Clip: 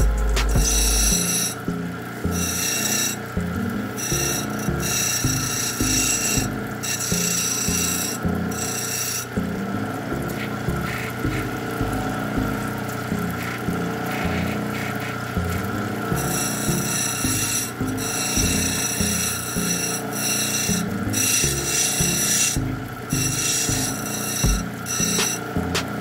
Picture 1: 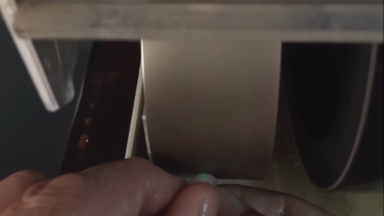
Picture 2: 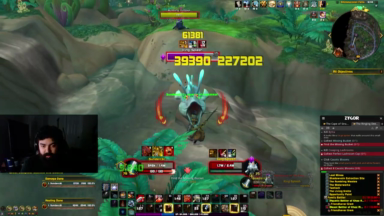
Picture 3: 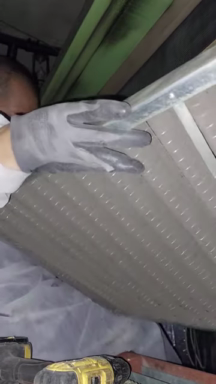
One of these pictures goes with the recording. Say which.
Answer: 1